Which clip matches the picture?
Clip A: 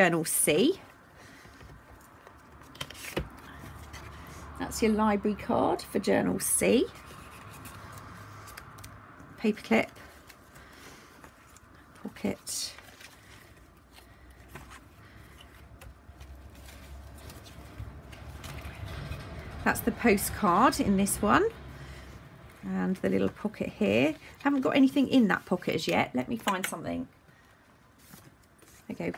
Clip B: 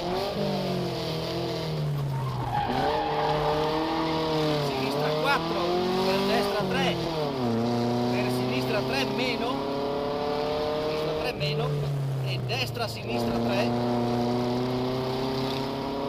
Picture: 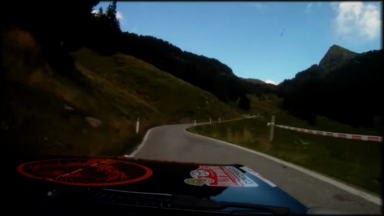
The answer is B